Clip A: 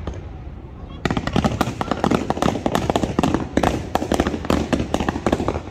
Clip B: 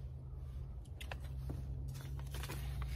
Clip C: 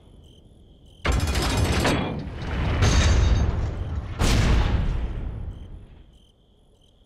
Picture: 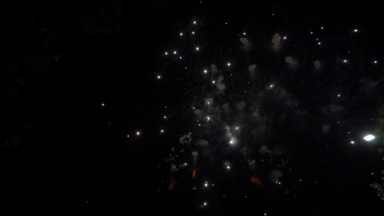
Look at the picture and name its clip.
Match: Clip A